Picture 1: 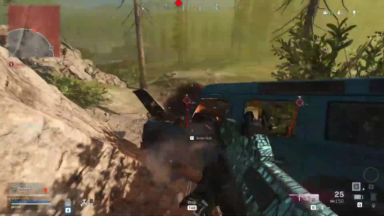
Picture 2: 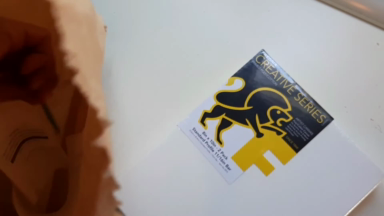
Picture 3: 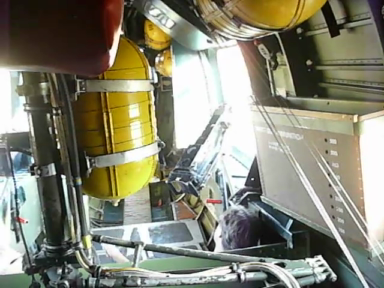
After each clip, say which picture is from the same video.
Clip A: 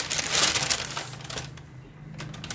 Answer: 2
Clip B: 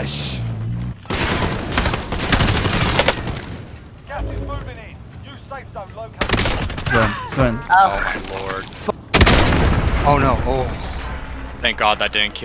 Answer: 1